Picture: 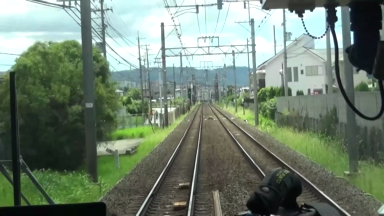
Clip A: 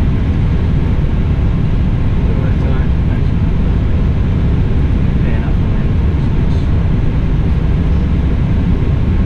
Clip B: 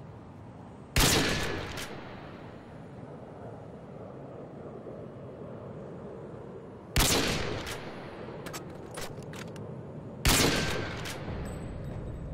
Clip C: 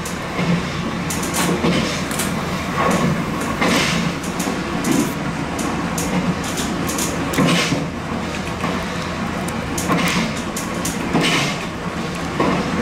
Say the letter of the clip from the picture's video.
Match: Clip C